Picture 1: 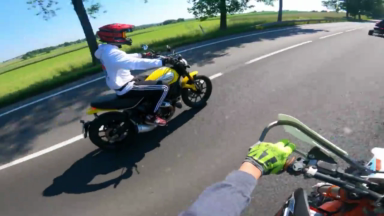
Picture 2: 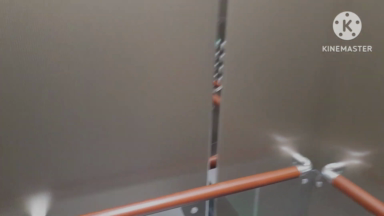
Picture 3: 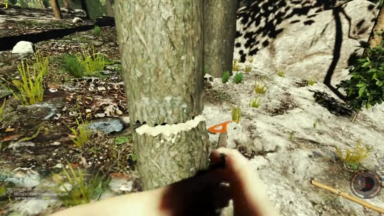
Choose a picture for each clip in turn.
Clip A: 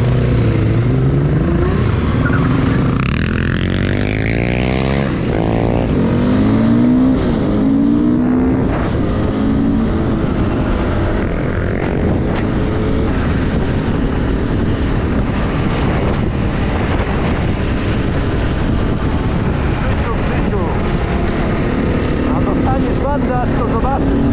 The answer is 1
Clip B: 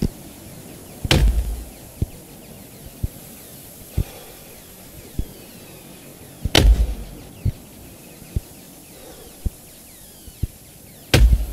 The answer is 3